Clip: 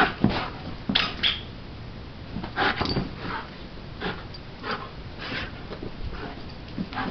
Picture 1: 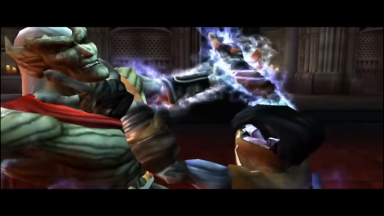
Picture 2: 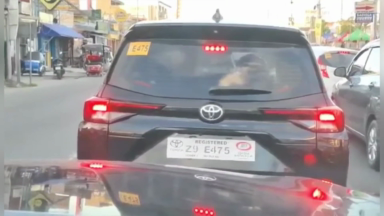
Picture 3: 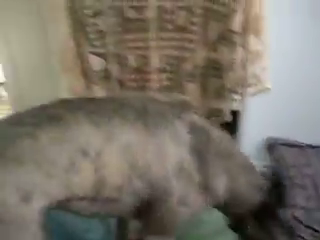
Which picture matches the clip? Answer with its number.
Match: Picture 3